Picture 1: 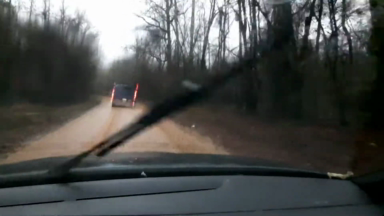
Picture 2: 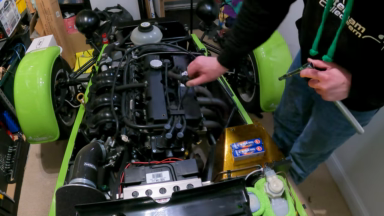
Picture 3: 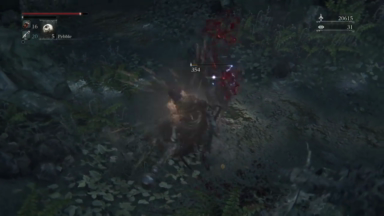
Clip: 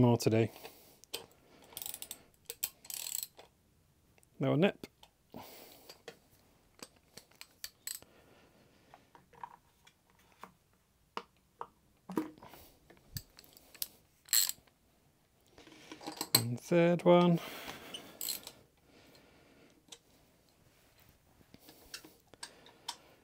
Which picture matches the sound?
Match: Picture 2